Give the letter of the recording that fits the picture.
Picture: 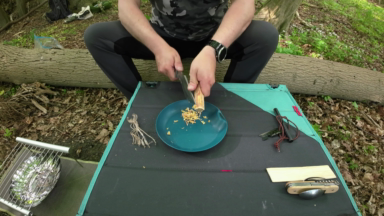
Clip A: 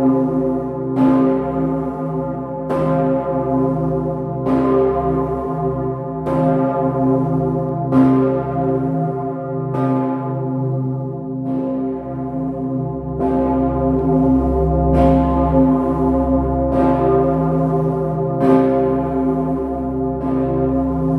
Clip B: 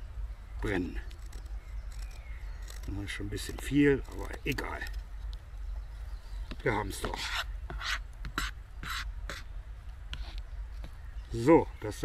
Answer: B